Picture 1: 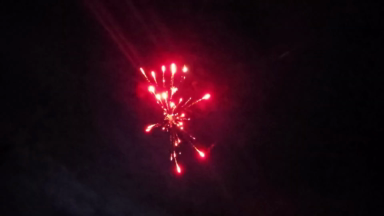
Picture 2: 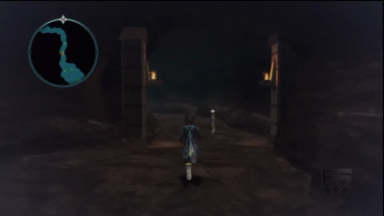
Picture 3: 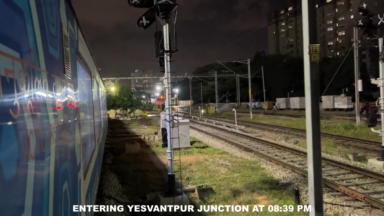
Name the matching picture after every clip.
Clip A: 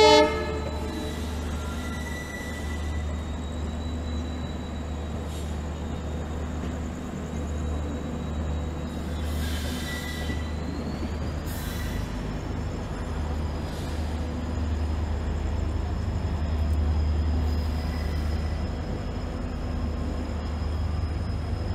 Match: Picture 3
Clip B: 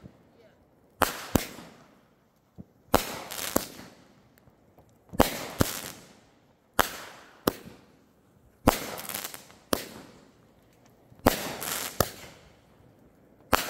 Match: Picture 1